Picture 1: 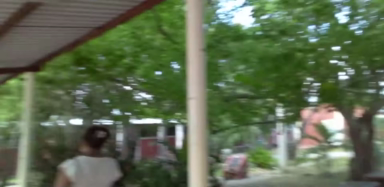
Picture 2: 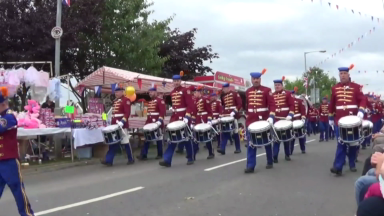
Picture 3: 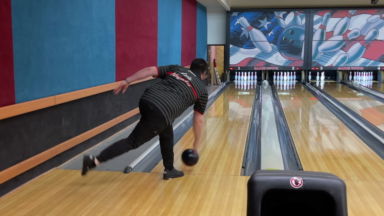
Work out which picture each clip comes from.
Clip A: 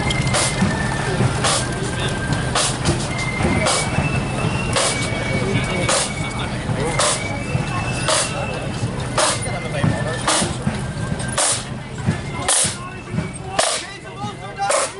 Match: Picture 2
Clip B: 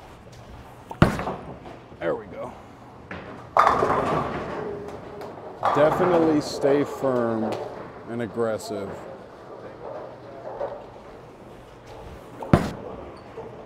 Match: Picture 3